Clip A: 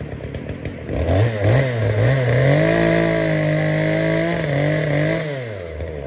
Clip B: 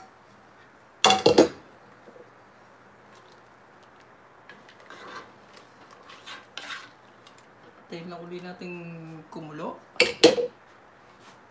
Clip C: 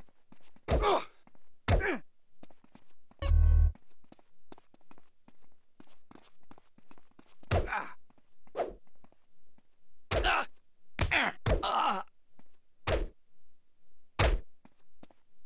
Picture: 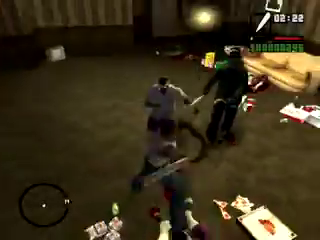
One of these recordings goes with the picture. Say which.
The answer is C